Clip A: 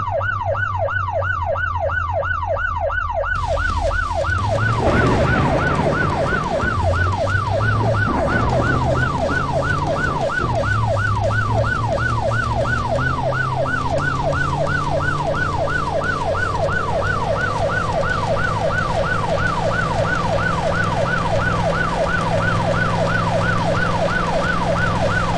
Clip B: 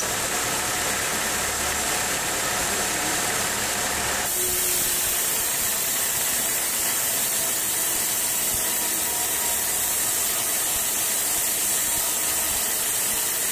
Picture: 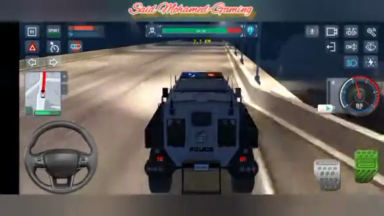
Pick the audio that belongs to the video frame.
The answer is A